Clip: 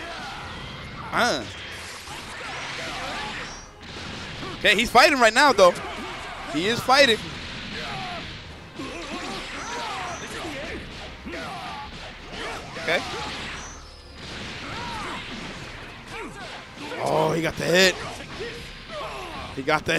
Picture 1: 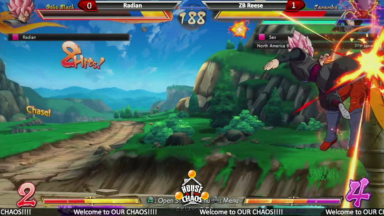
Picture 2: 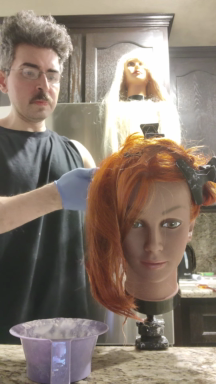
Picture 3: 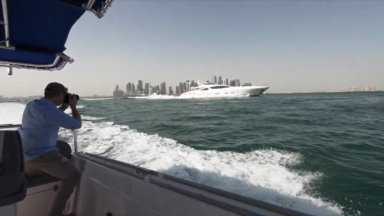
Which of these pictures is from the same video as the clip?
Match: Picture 1